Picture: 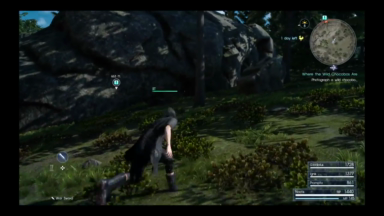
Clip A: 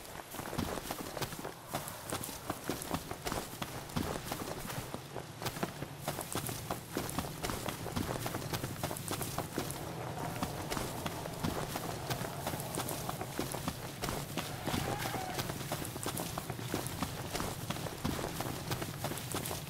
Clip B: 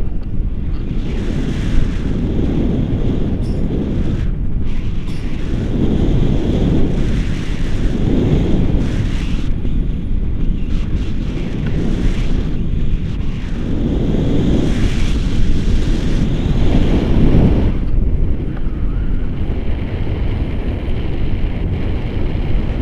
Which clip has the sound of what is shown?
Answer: A